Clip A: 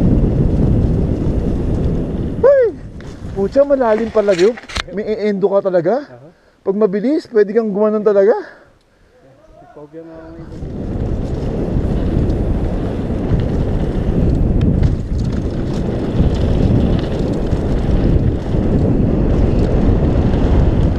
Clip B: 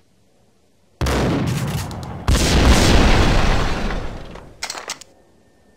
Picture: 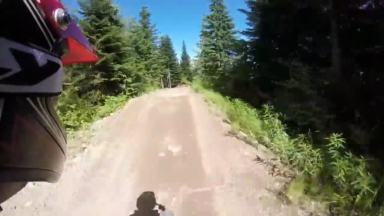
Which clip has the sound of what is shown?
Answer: A